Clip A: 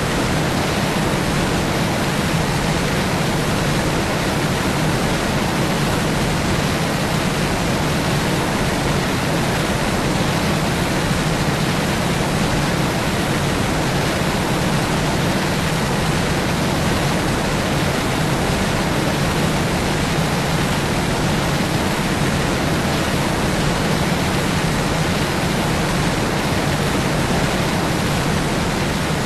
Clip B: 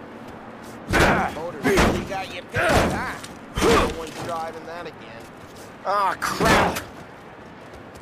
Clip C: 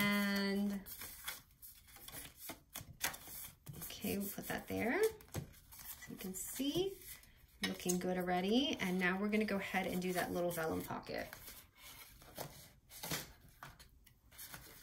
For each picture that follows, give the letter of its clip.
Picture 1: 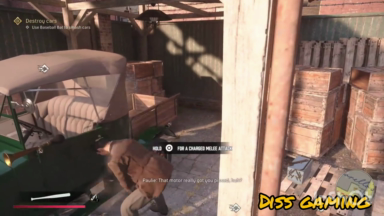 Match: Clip B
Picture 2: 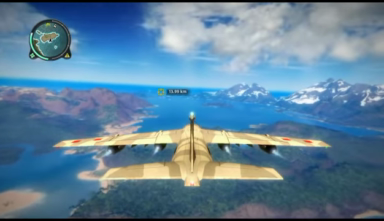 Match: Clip A